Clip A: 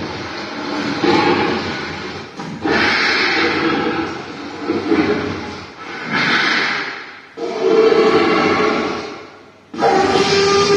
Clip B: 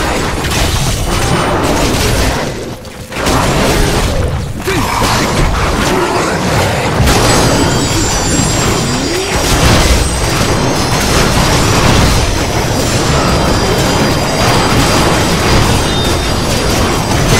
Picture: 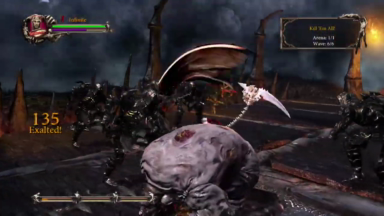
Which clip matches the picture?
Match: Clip B